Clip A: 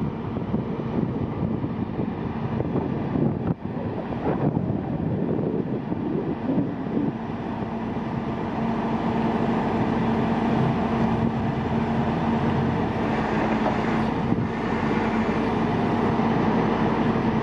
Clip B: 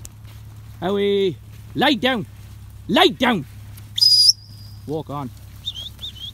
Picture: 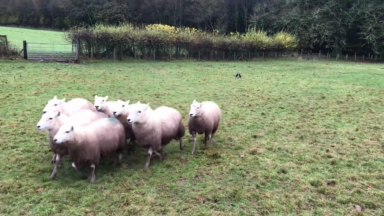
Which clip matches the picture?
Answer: B